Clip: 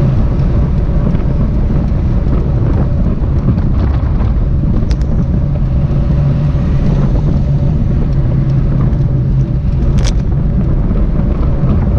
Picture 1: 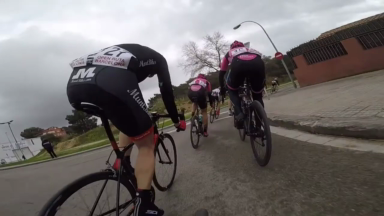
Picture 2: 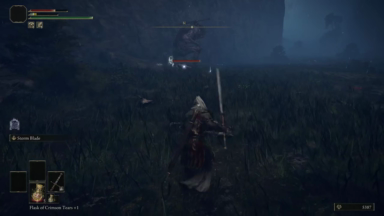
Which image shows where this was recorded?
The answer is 1